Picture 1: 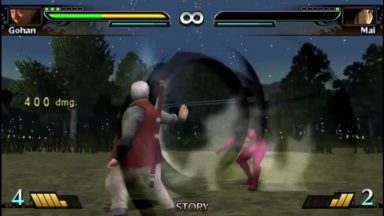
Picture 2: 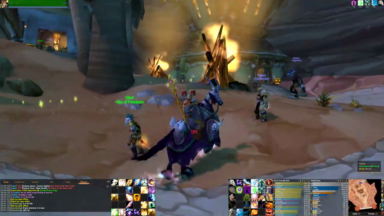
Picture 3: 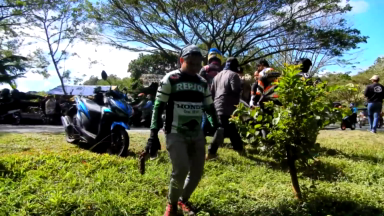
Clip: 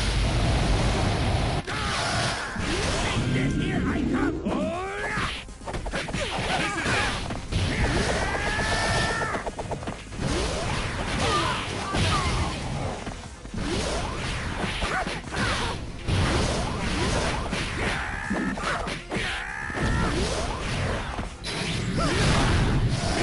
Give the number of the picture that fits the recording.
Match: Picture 1